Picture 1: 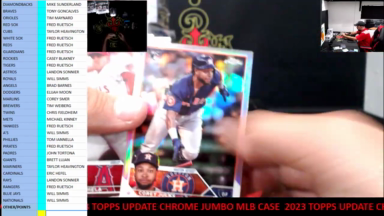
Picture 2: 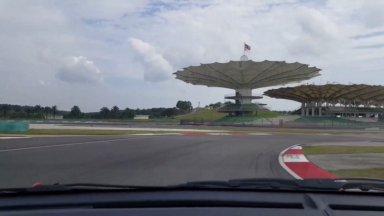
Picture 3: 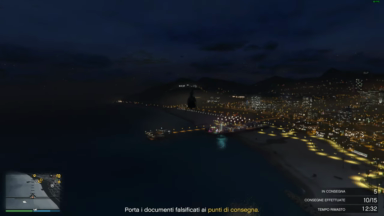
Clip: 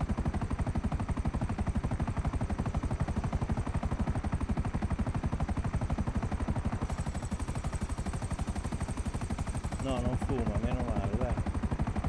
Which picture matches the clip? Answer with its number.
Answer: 3